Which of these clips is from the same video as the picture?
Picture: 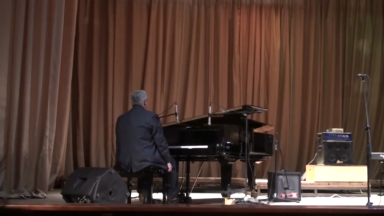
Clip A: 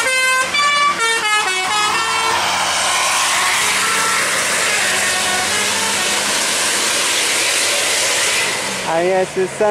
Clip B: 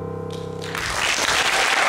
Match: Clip B